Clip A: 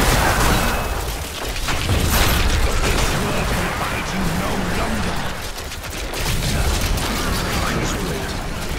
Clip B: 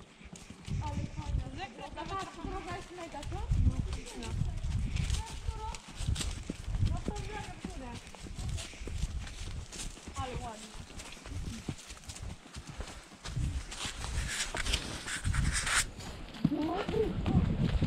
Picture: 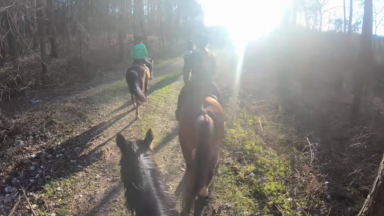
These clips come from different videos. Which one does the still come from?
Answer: B